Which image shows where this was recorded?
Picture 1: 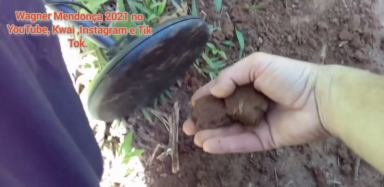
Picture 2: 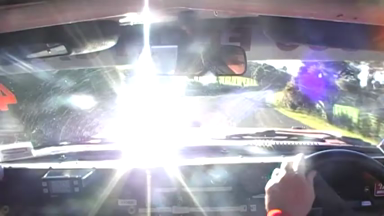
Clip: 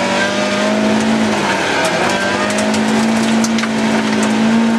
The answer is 2